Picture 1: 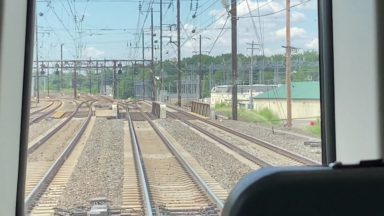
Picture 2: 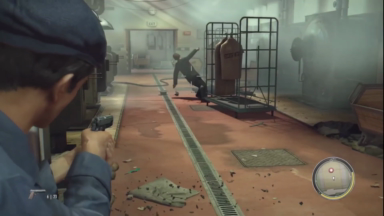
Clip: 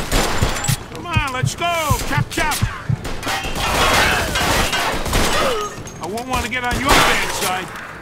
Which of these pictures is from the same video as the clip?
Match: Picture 2